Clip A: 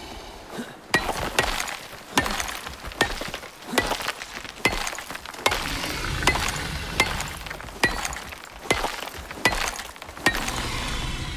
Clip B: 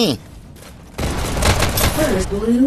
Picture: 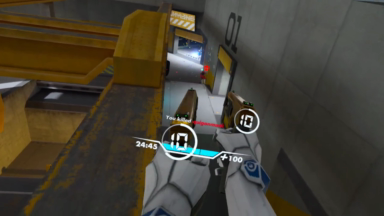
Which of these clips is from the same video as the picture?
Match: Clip B